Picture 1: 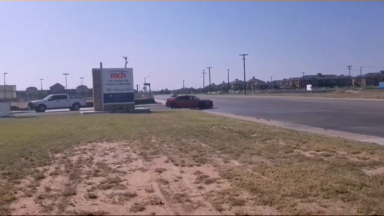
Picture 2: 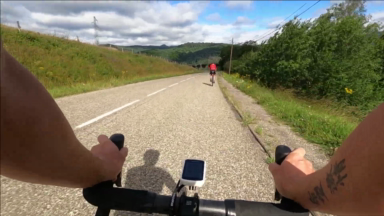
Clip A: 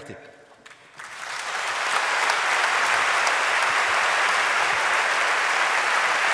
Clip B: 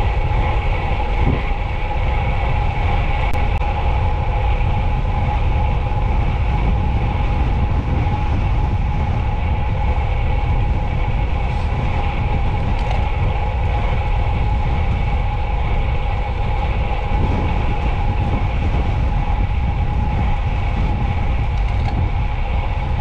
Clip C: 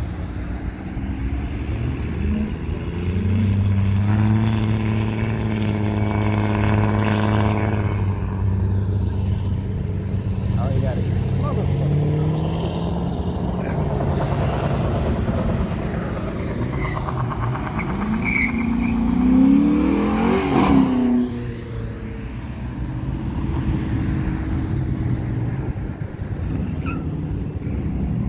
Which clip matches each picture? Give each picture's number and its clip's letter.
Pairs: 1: C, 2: B